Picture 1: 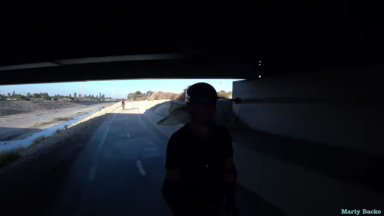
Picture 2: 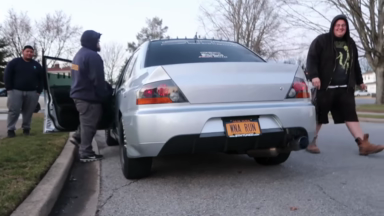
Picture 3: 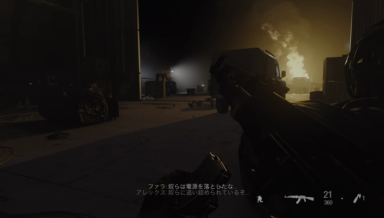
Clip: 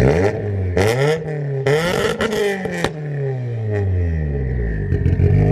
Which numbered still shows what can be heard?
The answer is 2